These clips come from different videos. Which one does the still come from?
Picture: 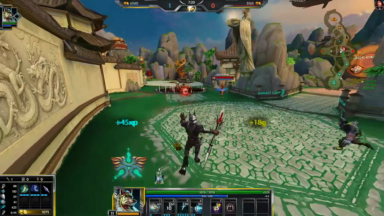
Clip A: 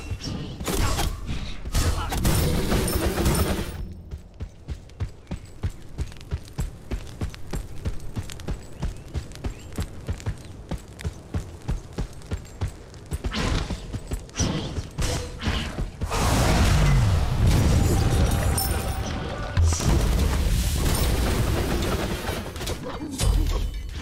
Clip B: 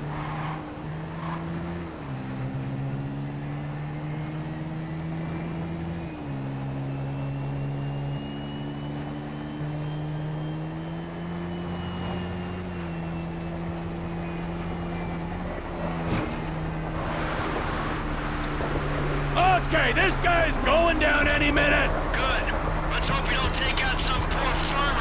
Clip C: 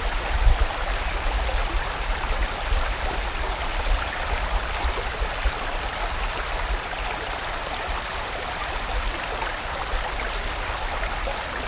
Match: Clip A